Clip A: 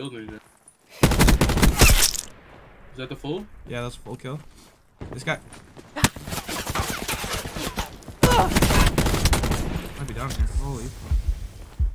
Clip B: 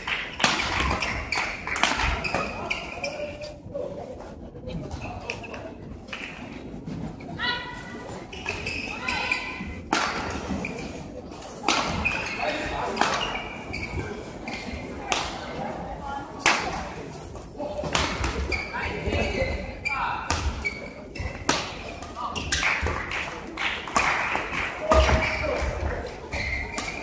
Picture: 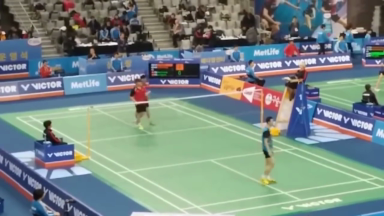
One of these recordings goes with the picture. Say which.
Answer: B